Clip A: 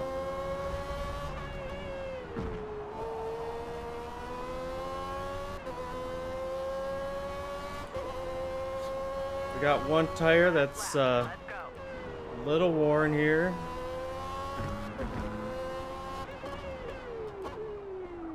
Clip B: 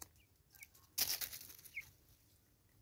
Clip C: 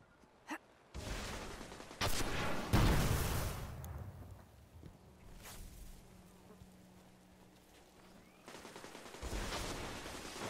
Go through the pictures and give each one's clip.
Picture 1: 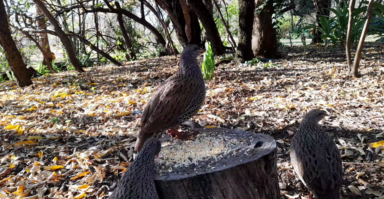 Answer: B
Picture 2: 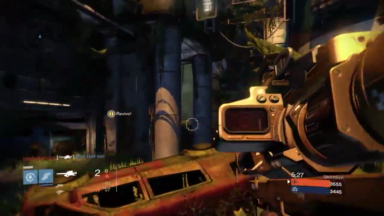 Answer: C